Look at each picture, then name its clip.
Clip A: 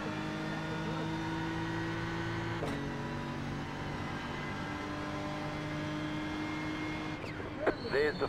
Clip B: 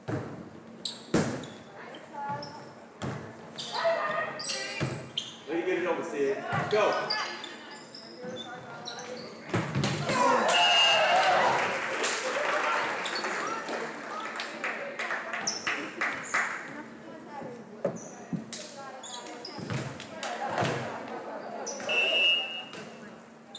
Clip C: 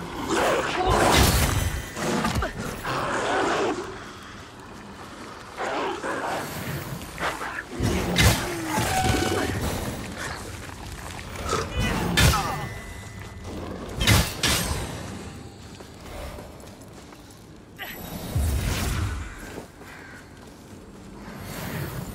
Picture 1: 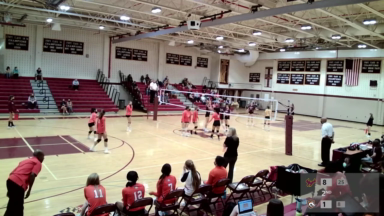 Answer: B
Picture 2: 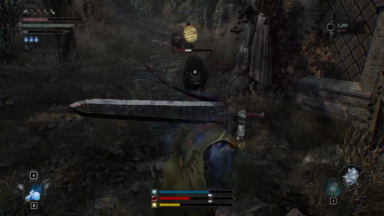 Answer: C